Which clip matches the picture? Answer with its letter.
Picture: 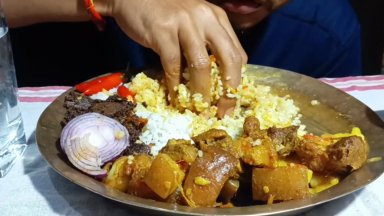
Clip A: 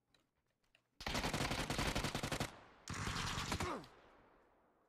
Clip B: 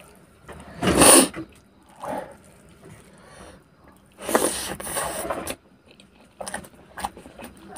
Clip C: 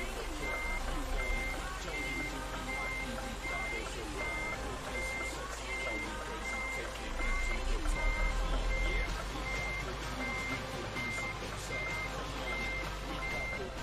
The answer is B